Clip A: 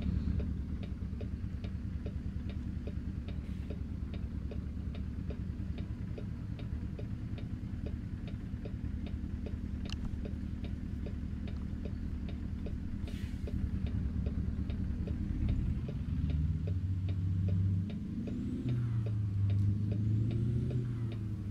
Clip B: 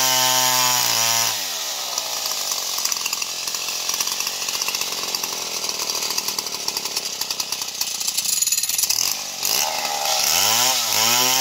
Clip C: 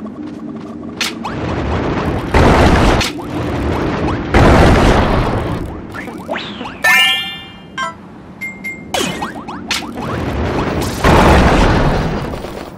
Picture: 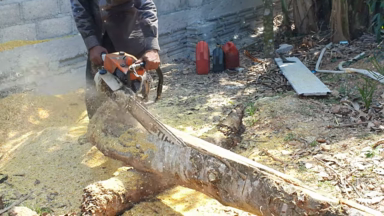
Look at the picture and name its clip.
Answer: B